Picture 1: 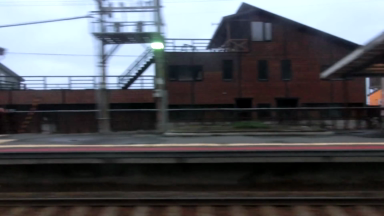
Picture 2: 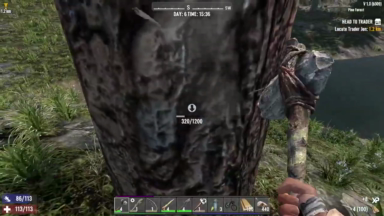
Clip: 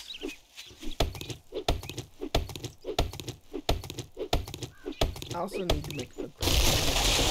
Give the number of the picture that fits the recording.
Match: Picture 2